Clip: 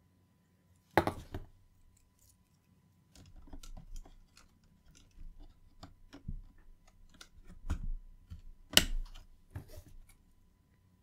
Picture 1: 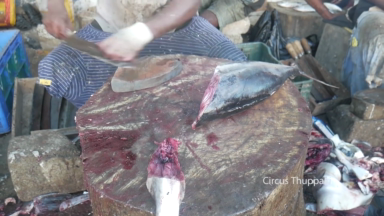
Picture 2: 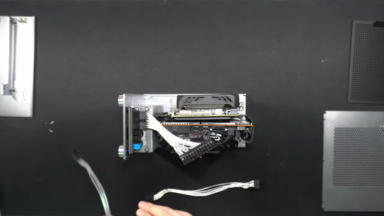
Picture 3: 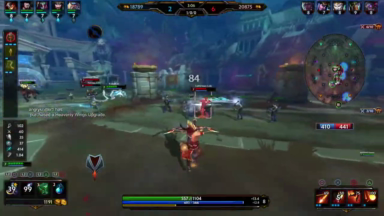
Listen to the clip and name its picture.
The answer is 2